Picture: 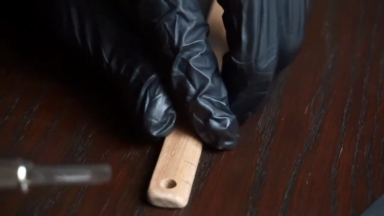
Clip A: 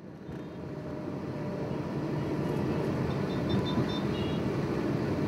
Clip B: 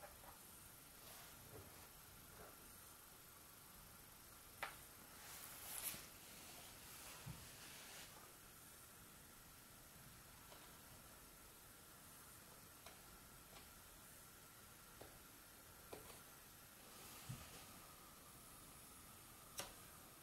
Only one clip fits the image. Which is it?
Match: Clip B